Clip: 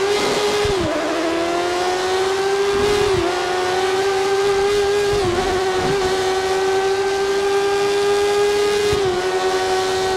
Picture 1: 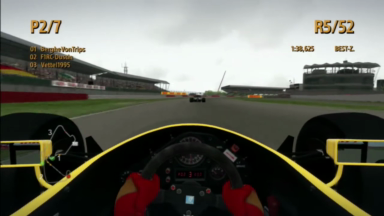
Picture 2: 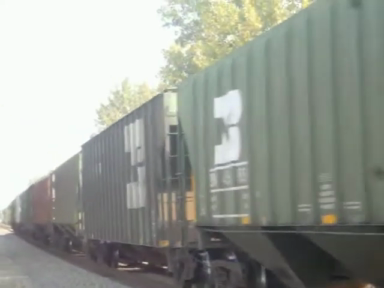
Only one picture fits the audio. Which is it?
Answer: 1